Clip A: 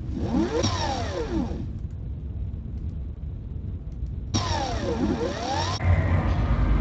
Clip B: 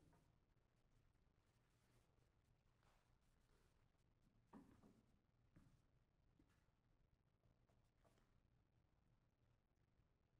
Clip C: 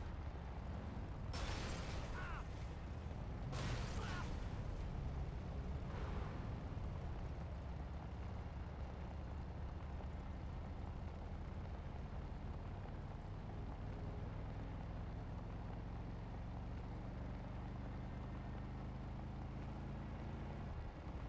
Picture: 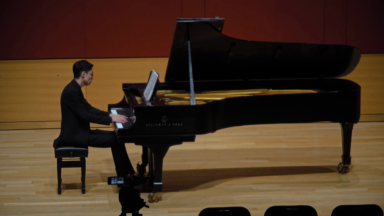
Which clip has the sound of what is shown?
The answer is B